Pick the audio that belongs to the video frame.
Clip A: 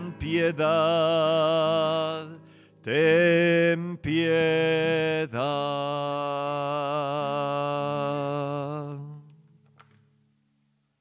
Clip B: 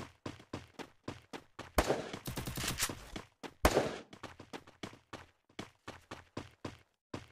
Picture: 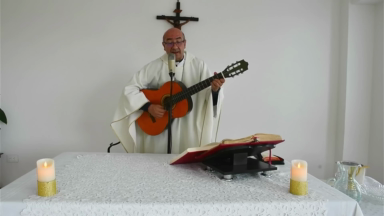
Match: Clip A